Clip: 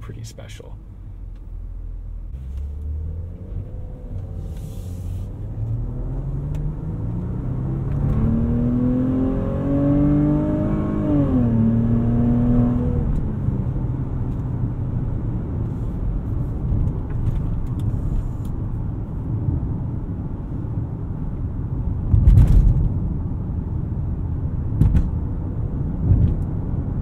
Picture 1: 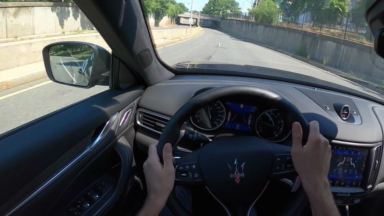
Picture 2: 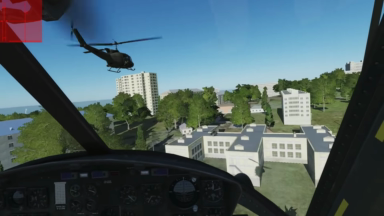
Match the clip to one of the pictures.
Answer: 1